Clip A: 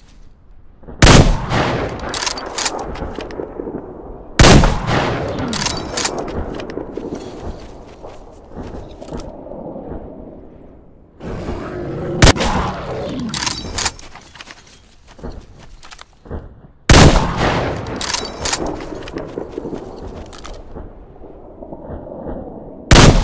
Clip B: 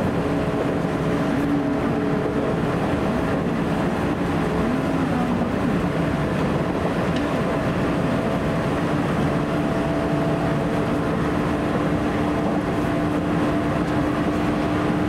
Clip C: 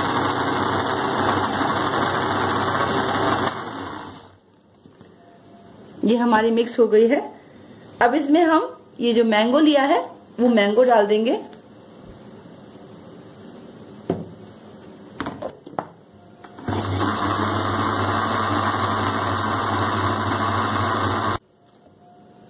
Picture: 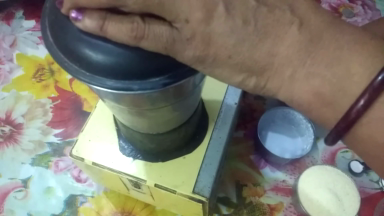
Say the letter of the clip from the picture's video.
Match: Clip C